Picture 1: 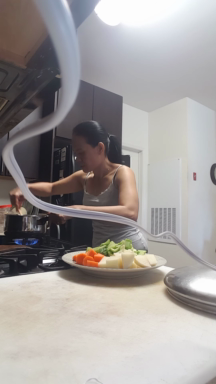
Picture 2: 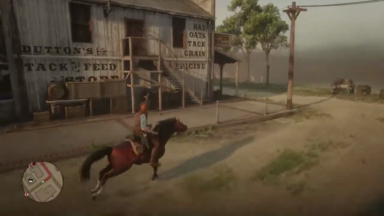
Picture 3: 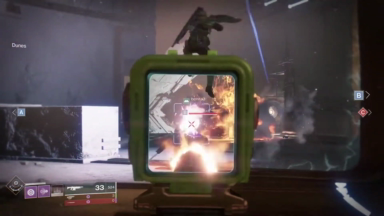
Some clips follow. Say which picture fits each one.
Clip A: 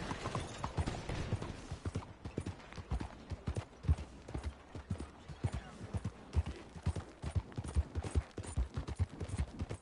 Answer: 2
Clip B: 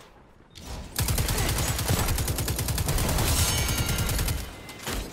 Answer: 3